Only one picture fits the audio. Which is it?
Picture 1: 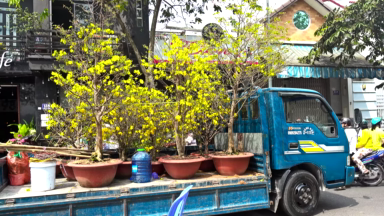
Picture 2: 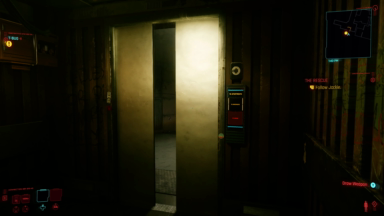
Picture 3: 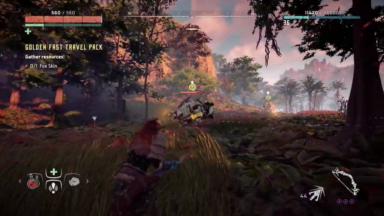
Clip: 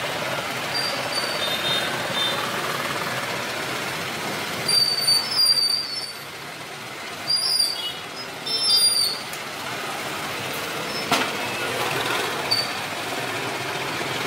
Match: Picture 1